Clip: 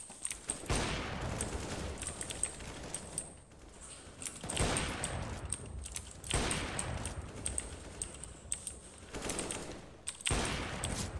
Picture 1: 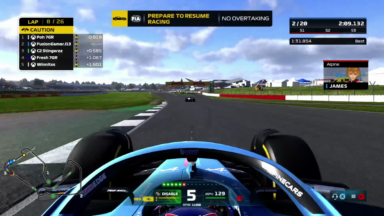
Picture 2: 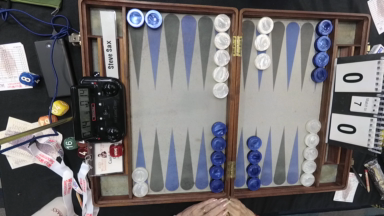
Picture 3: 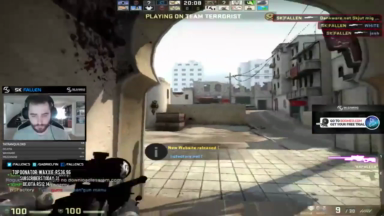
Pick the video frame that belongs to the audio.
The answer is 3